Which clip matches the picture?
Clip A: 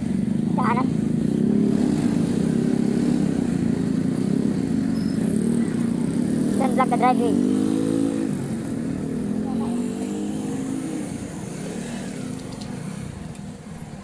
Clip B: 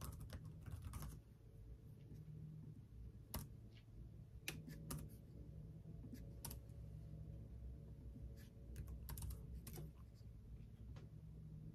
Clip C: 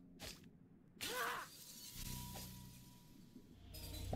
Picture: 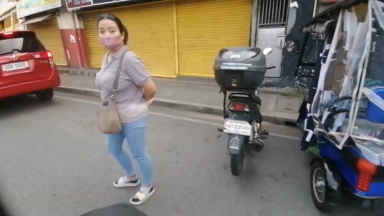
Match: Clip A